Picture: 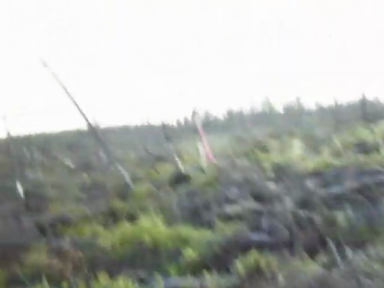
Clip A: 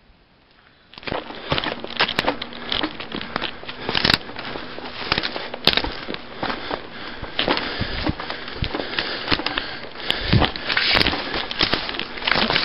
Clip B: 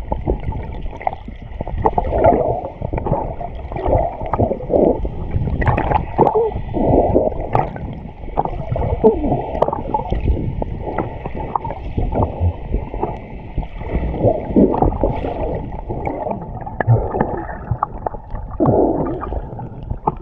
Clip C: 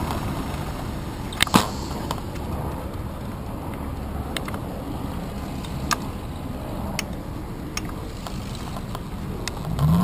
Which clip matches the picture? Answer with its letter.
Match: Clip A